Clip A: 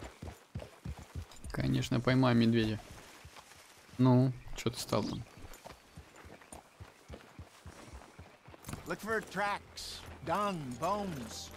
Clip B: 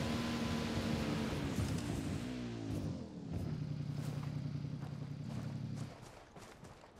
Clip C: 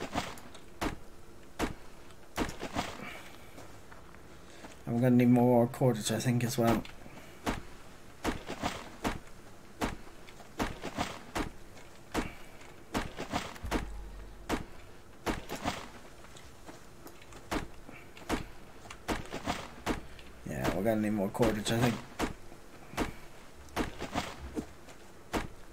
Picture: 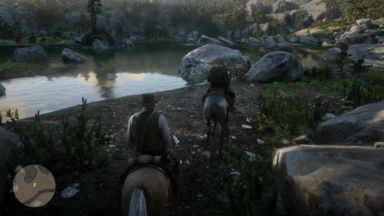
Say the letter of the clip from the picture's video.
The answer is A